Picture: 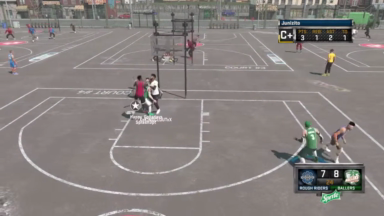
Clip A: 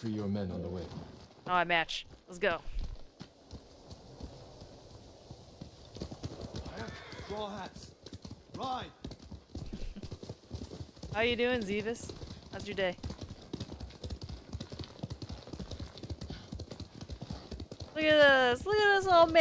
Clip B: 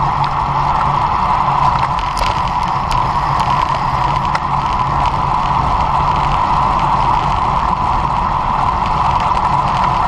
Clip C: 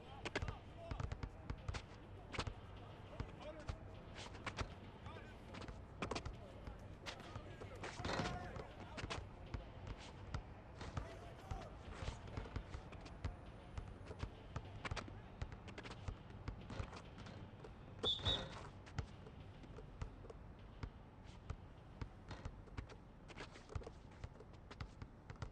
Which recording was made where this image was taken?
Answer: C